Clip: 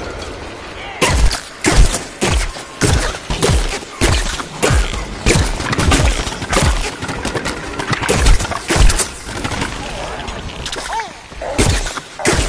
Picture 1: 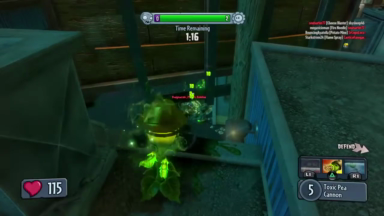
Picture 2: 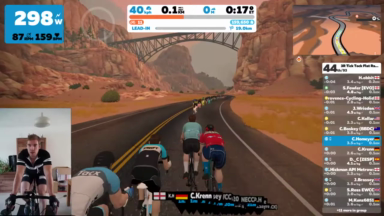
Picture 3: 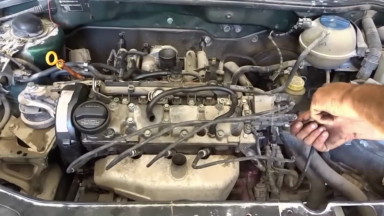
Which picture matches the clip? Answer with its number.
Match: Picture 1